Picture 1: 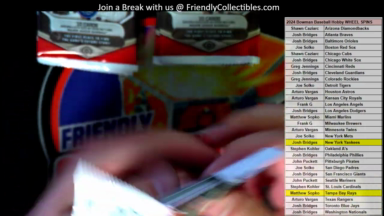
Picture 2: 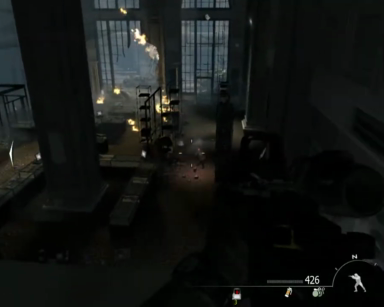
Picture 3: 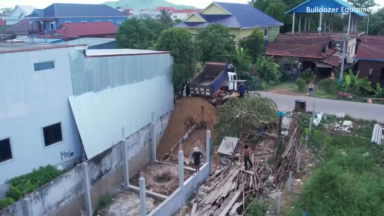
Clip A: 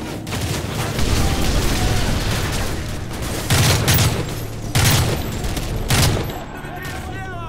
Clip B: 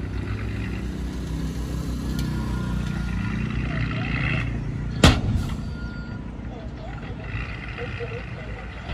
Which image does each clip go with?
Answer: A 2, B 3